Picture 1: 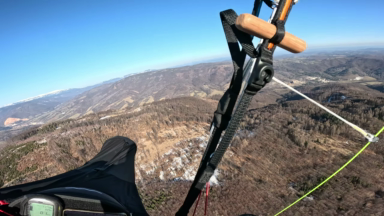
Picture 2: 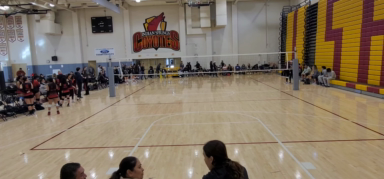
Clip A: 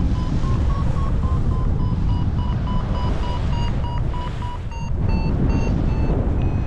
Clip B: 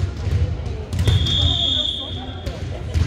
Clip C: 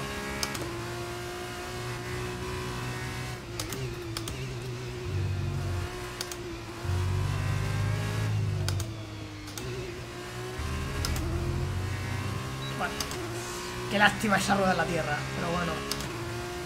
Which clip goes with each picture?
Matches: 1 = A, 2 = B